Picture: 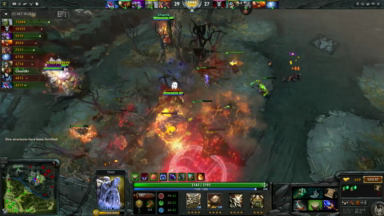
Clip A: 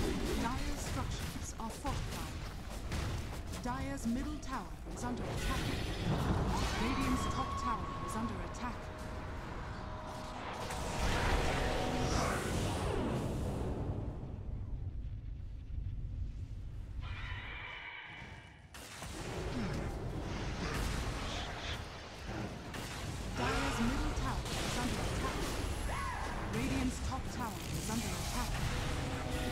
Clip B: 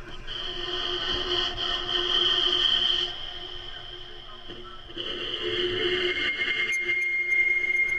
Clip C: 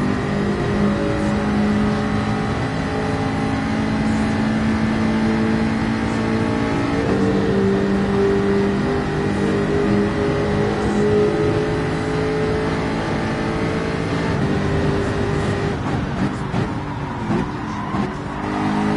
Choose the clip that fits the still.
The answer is A